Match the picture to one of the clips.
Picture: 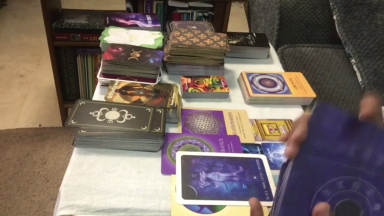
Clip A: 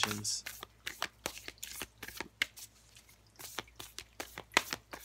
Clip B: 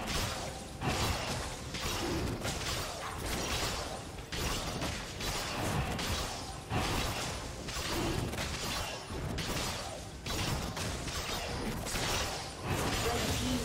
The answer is A